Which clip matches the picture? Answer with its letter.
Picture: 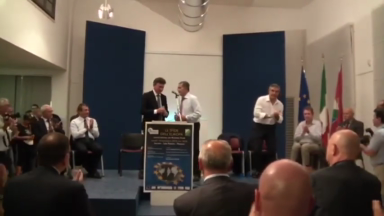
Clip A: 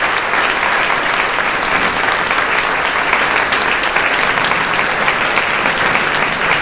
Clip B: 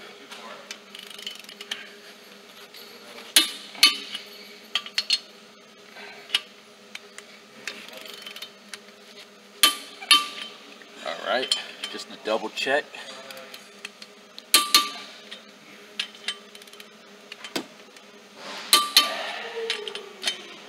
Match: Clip A